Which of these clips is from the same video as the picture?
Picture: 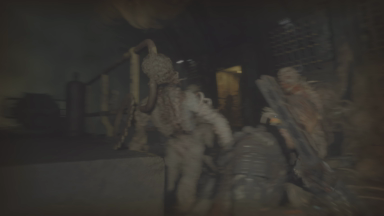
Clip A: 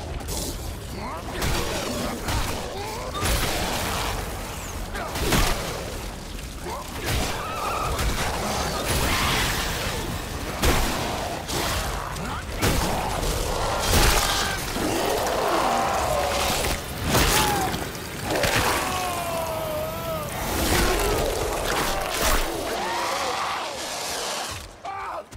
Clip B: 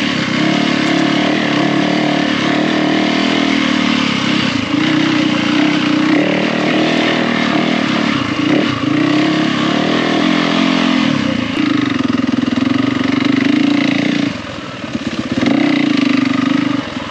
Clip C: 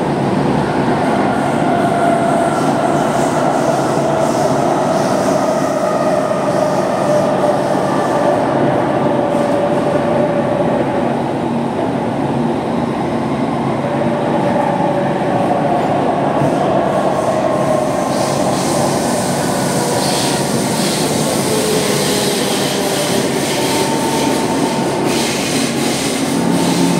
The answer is A